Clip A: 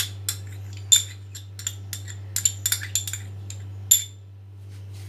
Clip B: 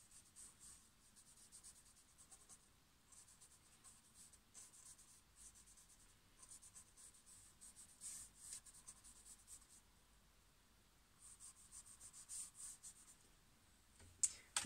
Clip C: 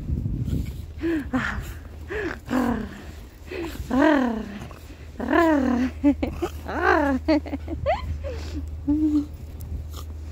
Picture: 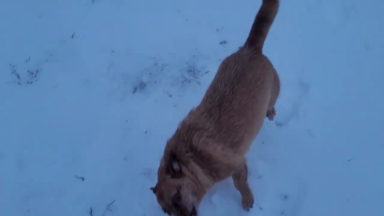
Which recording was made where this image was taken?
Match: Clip C